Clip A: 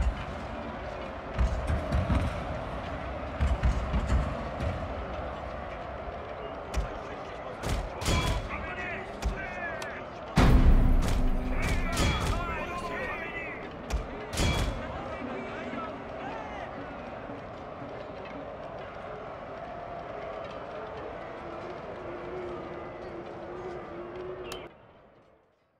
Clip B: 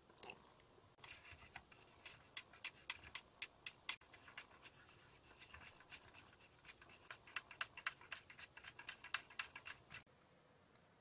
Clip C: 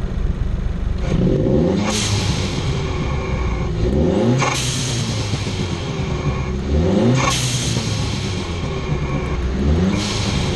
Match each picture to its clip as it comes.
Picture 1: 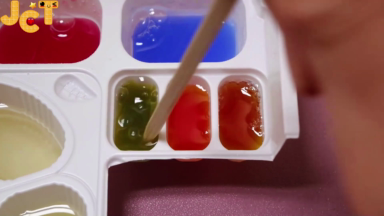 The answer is B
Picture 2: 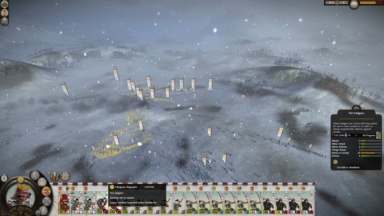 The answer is A